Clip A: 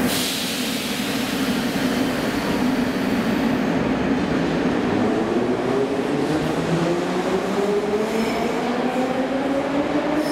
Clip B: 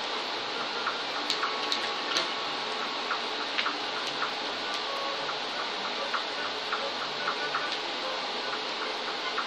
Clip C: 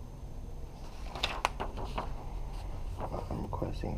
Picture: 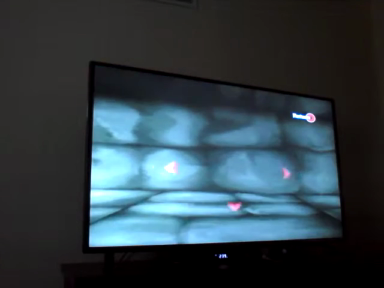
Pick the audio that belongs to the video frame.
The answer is B